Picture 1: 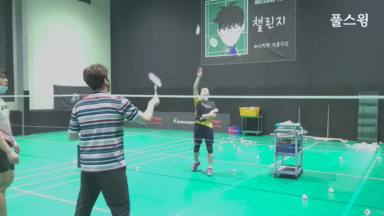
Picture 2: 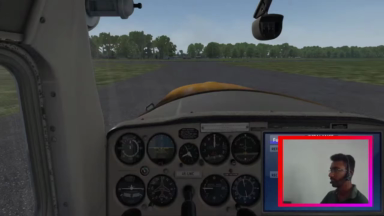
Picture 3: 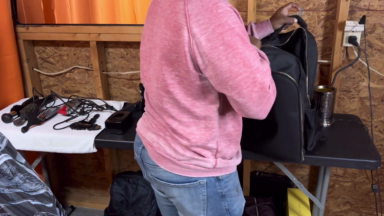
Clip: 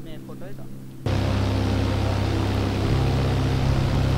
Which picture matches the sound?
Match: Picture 2